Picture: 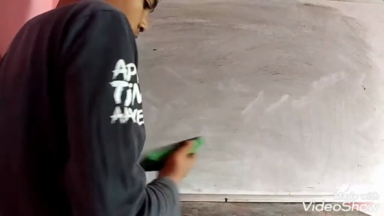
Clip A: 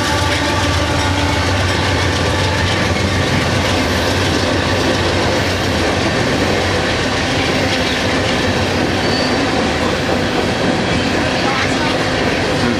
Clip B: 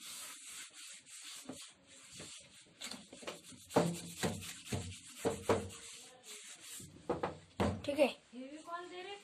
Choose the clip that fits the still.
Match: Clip B